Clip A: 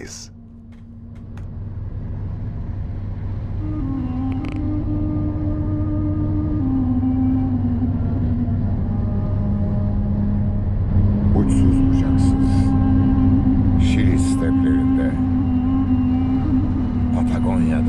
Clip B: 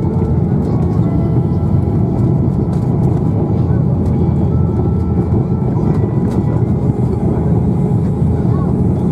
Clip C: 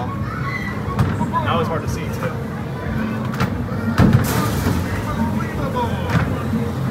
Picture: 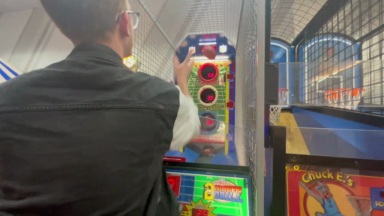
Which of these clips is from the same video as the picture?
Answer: C